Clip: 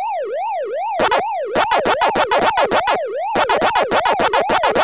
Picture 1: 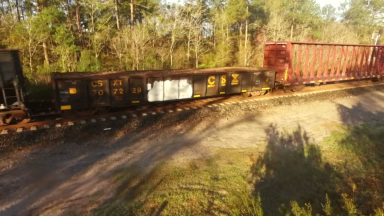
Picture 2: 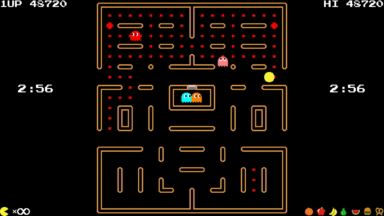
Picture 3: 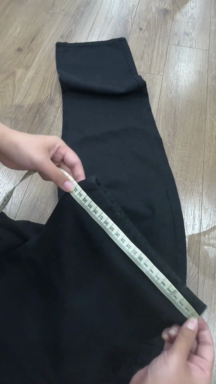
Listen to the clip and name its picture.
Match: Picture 2